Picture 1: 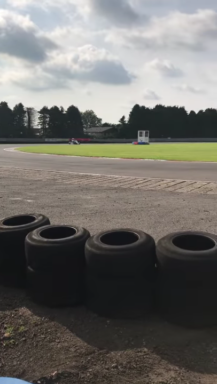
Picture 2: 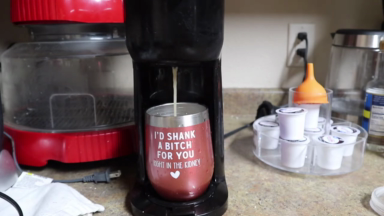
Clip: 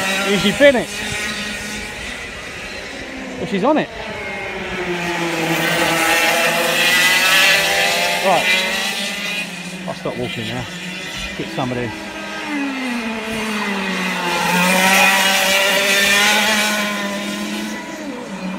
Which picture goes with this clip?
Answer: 1